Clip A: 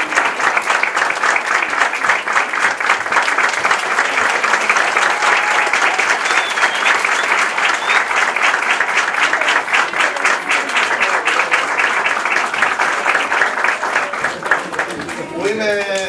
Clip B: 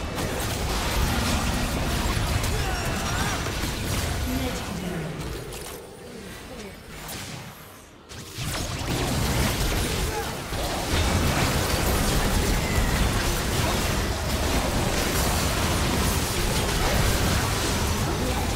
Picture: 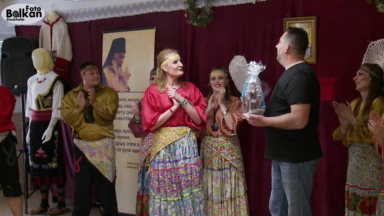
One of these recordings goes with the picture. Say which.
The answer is A